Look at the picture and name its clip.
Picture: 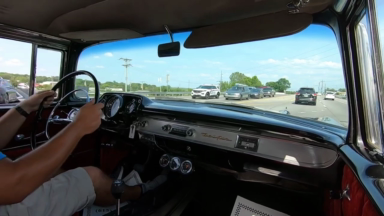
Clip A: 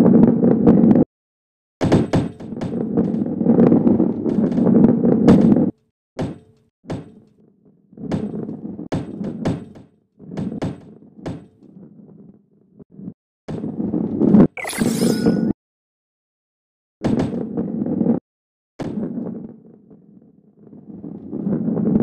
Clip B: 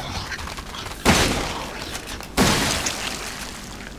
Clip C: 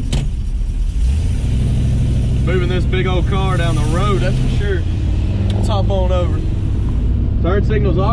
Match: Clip C